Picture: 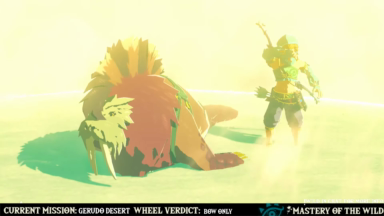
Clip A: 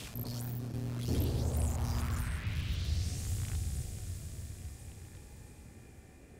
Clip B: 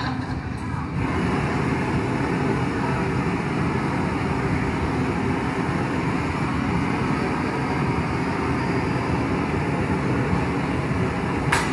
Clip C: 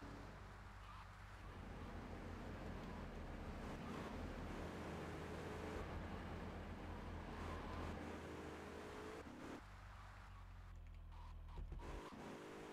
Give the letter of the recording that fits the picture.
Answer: A